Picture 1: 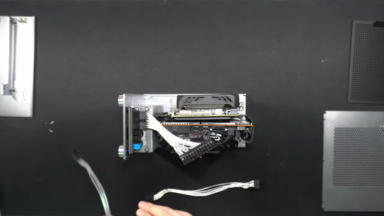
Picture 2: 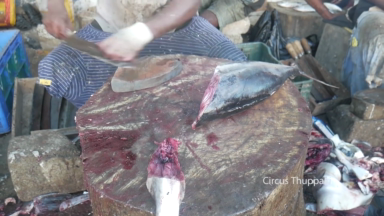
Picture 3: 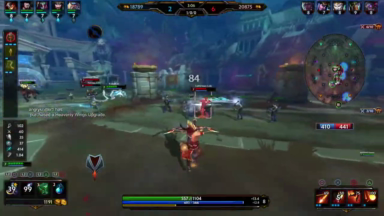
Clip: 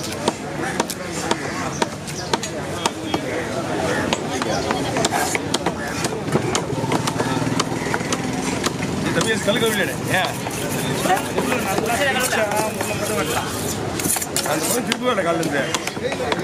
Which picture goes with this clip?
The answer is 2